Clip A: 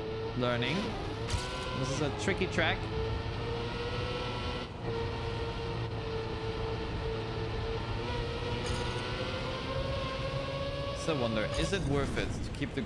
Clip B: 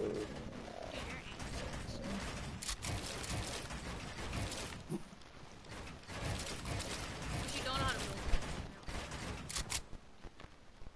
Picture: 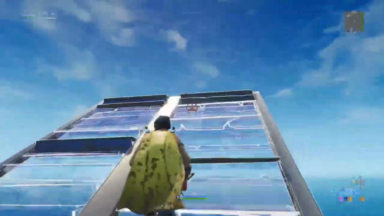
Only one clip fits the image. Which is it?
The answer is B